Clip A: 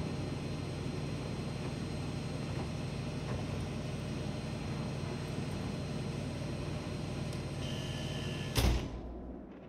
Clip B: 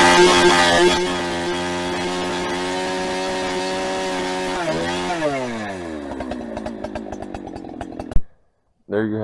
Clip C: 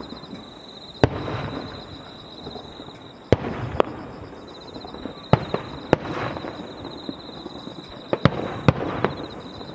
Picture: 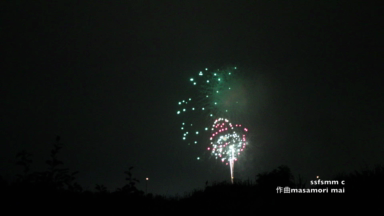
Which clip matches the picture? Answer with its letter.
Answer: C